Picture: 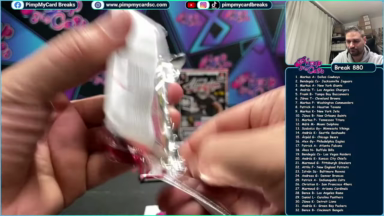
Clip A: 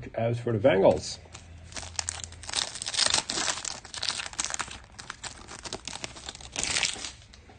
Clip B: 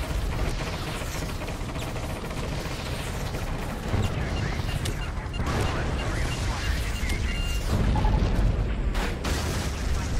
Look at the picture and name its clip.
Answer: A